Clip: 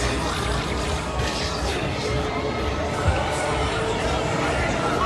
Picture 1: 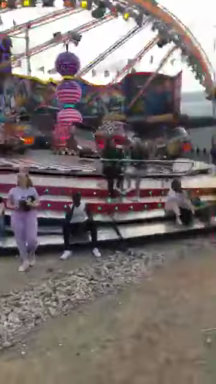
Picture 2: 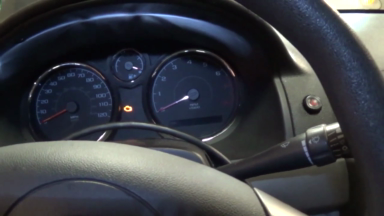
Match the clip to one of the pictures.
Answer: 1